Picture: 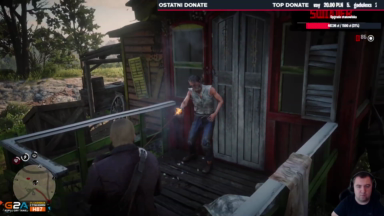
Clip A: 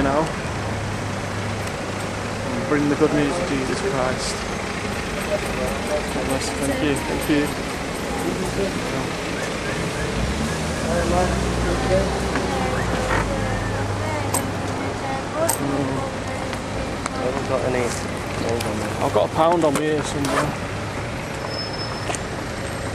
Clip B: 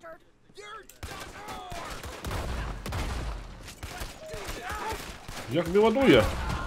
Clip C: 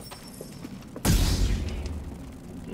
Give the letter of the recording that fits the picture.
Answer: B